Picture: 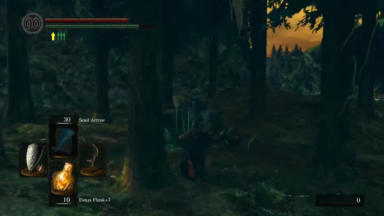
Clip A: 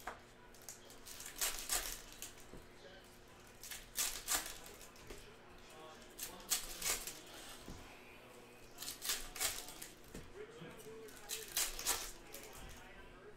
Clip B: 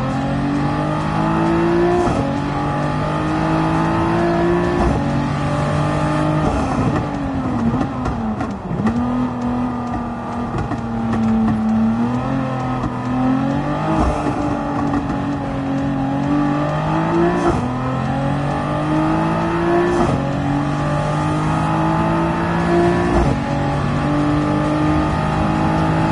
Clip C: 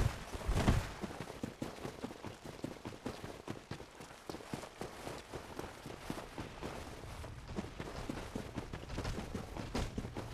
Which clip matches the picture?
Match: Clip C